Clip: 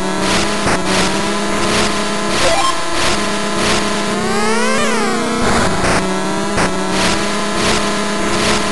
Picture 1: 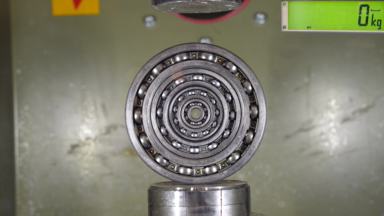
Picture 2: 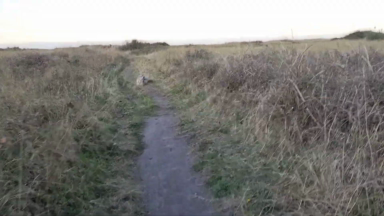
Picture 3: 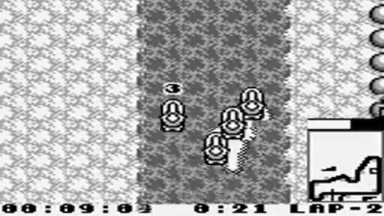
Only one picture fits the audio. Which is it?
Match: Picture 3